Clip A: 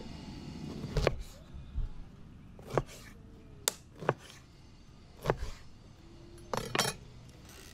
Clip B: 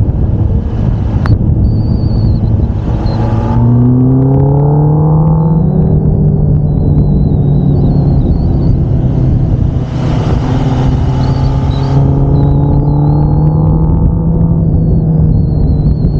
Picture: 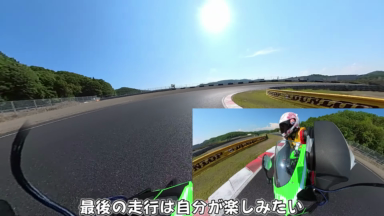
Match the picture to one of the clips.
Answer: B